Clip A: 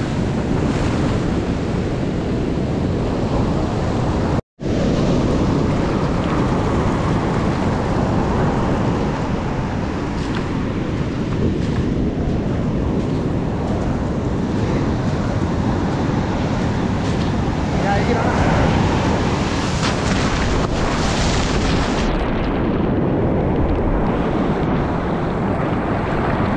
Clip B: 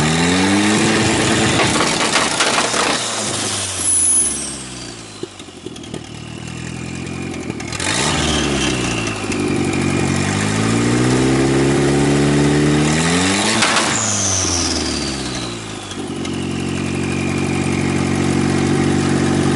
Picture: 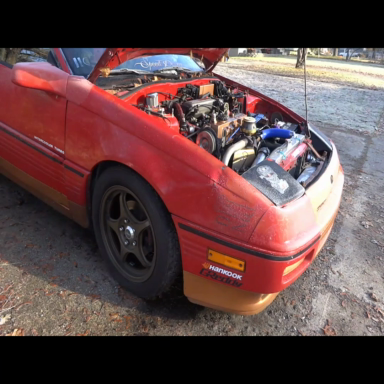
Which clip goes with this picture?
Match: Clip B